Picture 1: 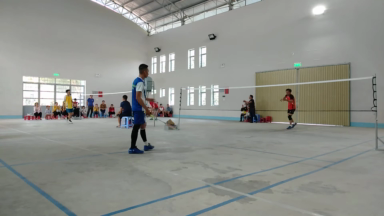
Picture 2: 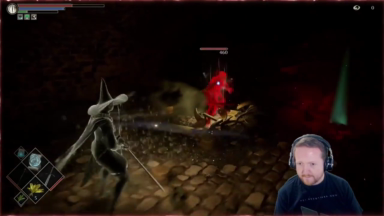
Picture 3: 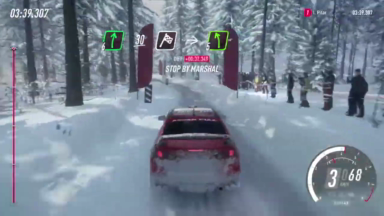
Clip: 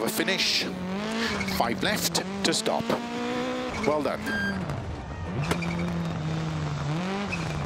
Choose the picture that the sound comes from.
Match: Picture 3